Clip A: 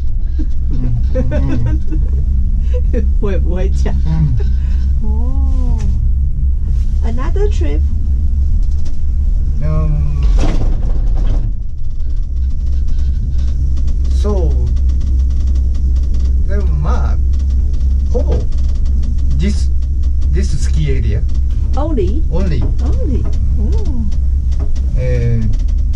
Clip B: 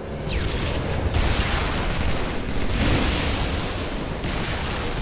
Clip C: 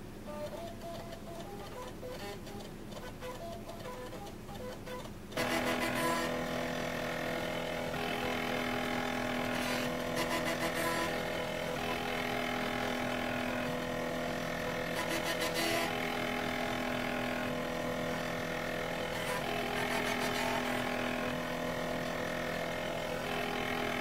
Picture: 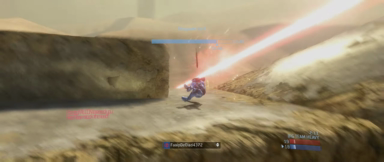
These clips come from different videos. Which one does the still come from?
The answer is B